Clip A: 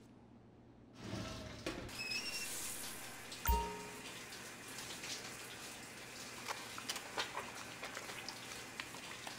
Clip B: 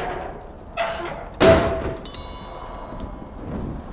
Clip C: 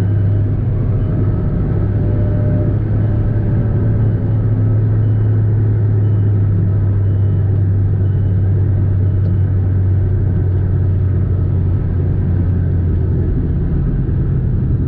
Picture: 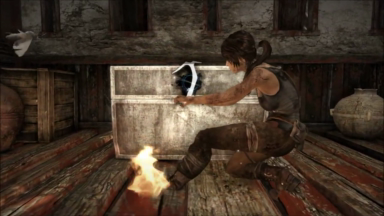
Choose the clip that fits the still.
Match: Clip B